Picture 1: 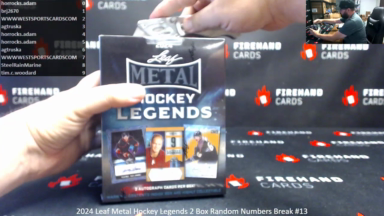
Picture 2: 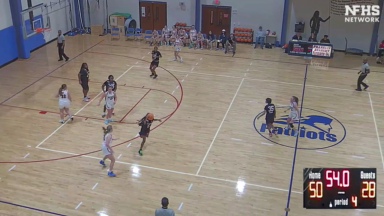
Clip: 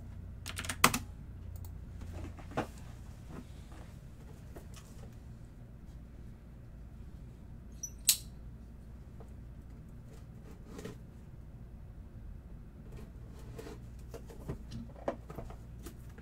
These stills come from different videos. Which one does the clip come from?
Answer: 1